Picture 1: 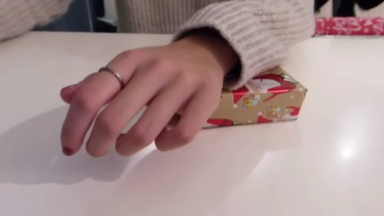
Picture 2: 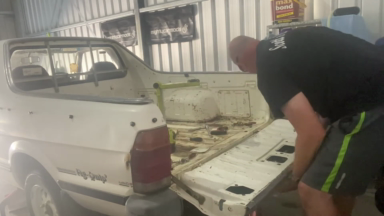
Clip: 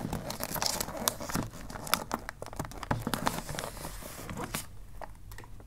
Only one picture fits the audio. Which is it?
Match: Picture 1